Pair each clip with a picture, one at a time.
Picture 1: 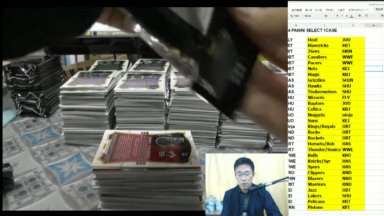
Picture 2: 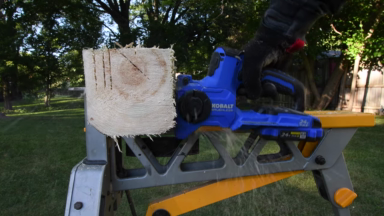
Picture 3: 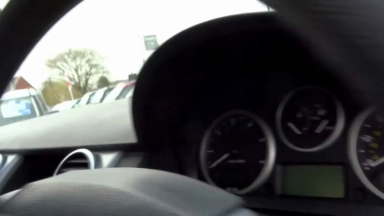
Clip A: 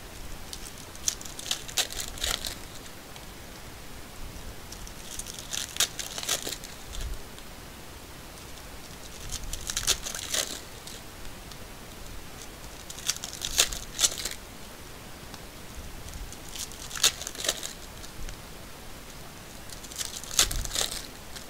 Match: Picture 1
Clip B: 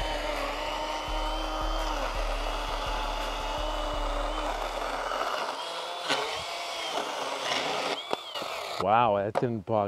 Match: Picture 2